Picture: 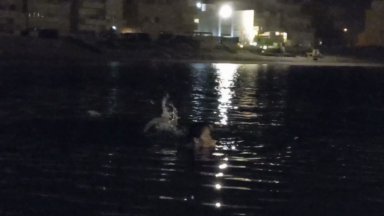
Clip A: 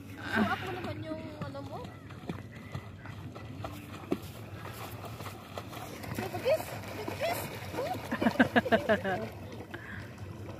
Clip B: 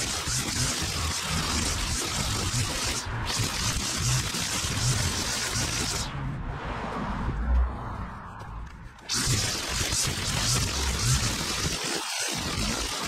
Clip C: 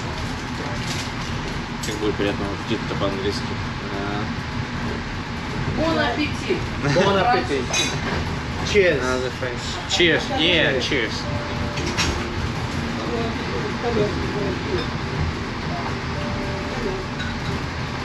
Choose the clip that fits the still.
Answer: A